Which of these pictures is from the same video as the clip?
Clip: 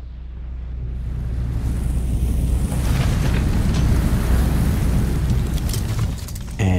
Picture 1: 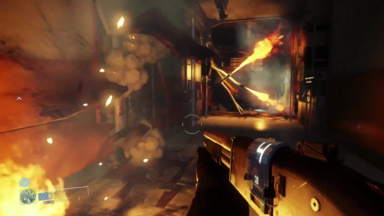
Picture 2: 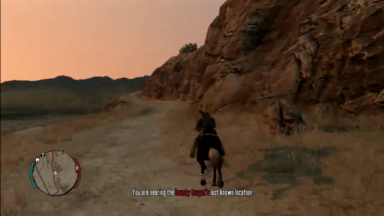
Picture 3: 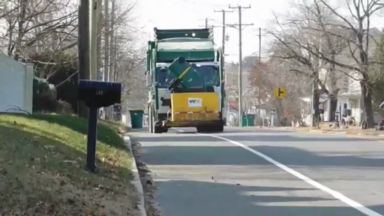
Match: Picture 1